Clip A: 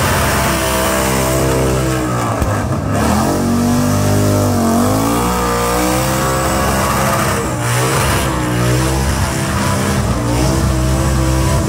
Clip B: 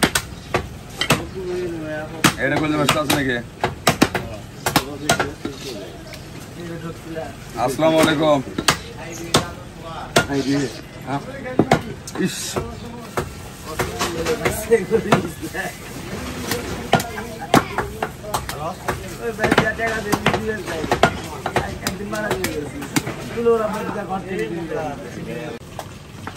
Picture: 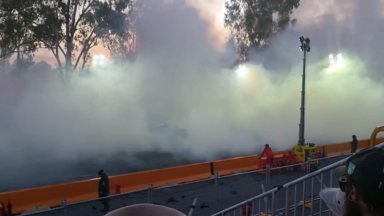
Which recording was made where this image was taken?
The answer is A